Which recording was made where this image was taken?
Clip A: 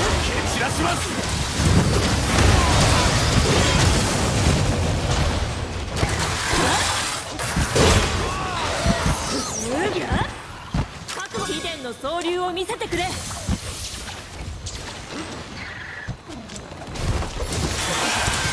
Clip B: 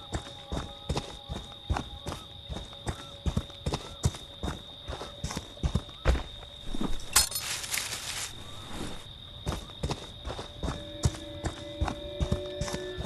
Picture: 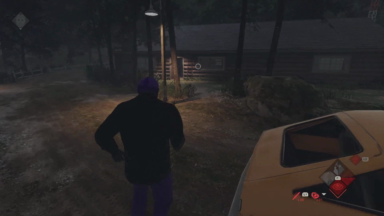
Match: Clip B